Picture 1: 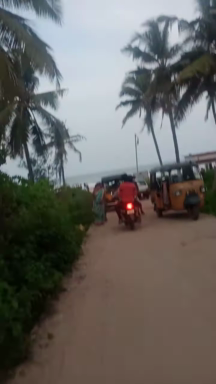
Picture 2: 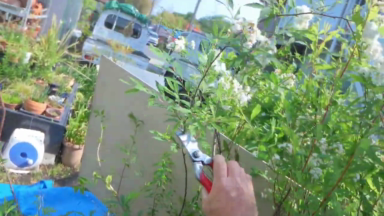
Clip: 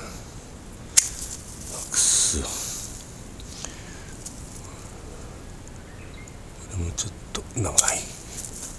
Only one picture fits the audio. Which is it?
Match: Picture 2